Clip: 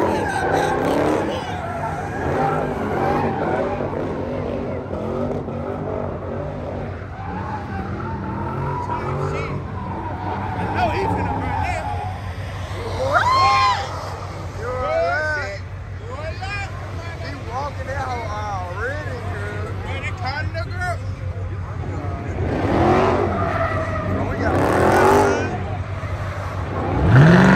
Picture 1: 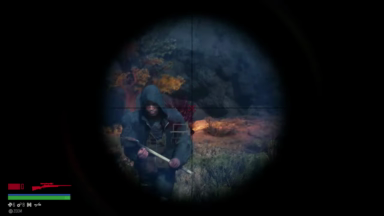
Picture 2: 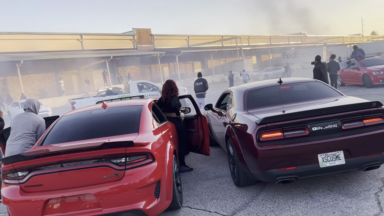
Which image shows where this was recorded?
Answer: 2